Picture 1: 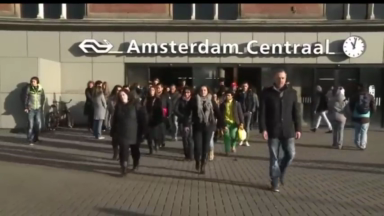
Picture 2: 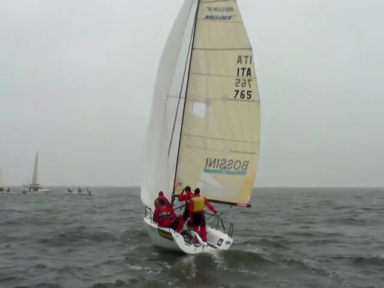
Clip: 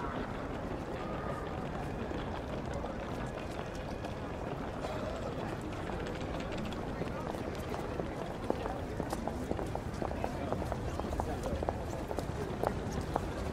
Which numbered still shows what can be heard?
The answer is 1